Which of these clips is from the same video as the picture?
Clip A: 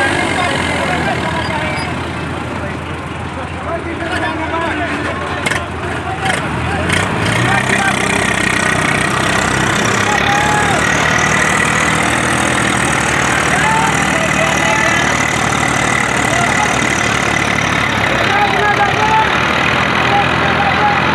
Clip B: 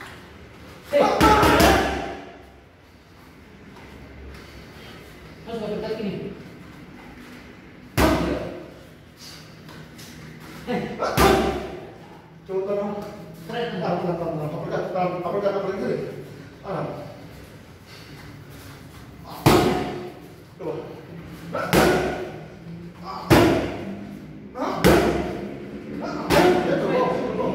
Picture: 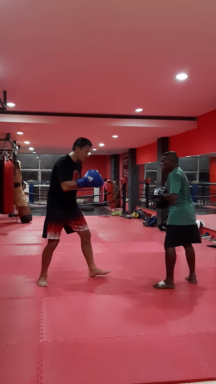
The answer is B